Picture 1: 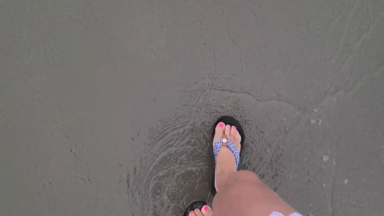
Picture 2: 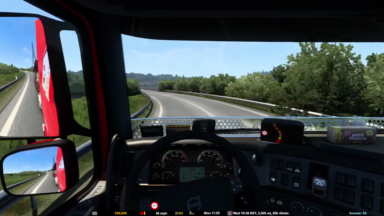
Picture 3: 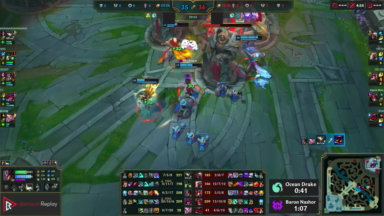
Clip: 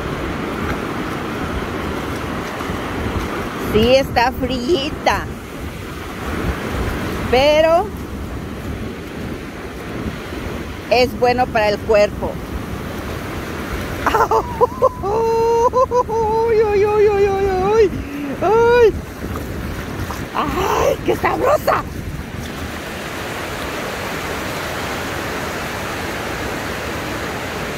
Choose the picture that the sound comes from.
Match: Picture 1